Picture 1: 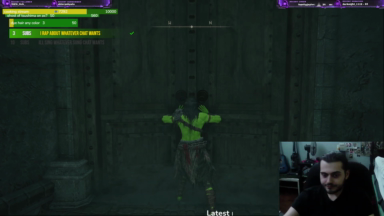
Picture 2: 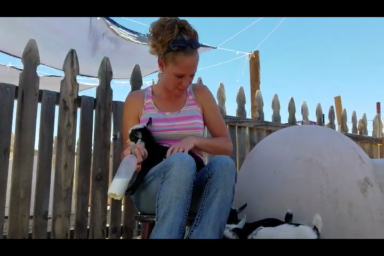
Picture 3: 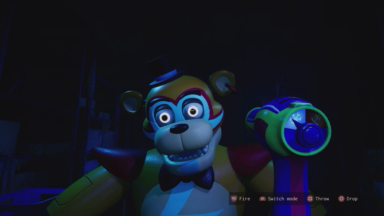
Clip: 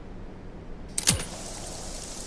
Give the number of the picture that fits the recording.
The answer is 3